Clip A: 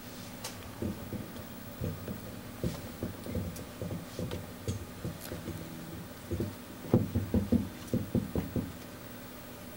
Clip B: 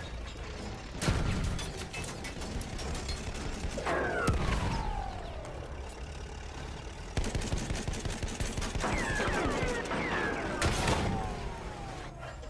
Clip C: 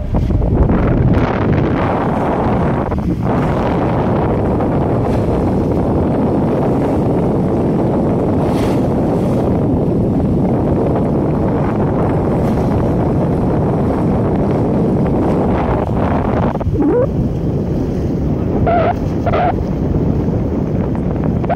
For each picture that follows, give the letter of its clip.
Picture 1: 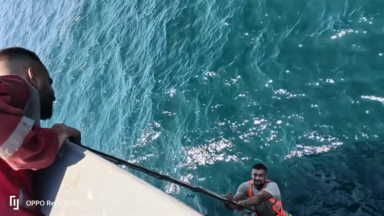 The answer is C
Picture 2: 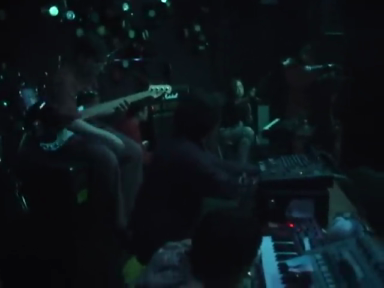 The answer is A